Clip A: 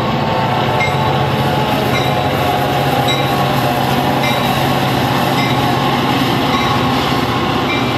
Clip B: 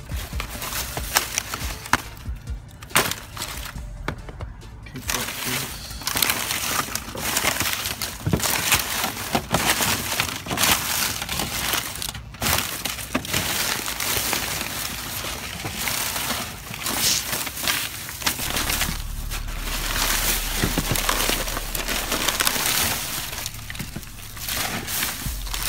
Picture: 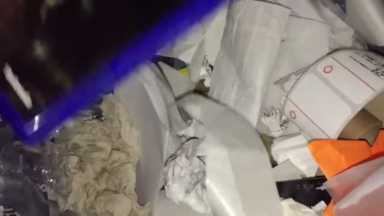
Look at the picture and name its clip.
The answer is B